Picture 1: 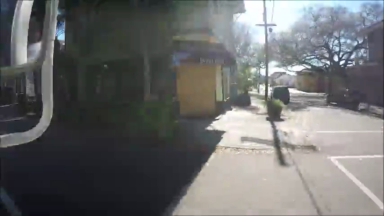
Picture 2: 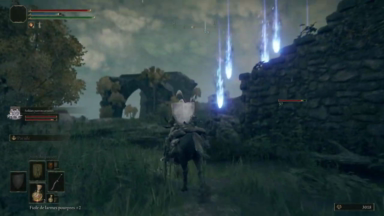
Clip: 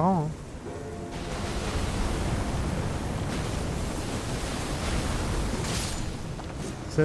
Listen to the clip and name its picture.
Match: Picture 2